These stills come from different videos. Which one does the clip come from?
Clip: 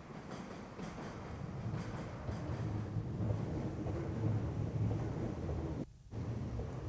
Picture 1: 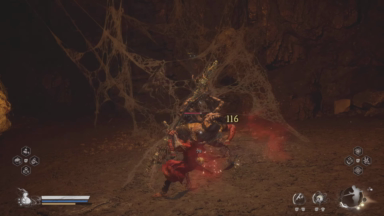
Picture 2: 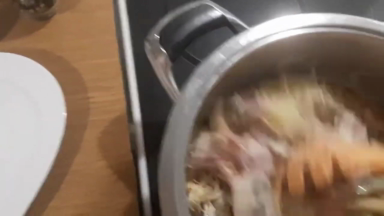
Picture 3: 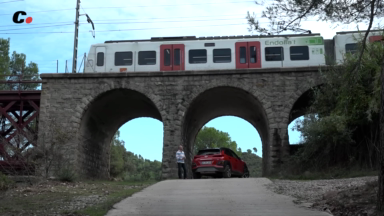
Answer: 3